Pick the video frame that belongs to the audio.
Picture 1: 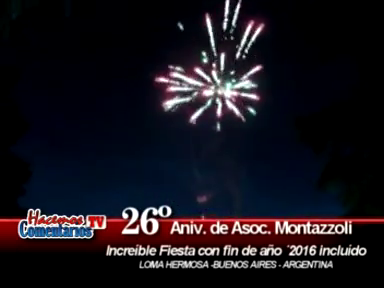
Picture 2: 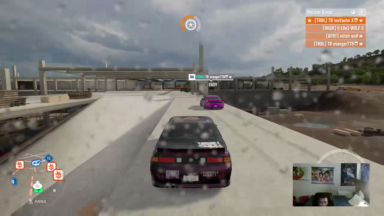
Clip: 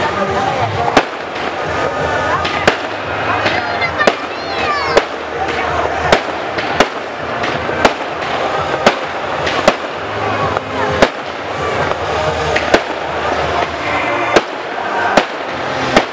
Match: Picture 1